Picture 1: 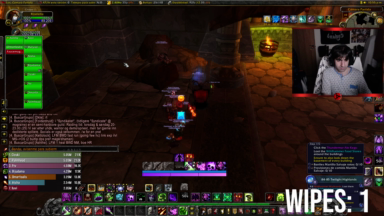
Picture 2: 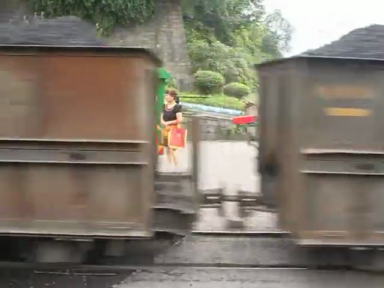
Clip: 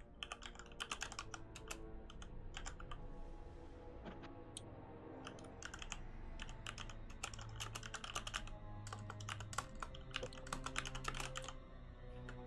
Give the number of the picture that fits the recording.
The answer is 1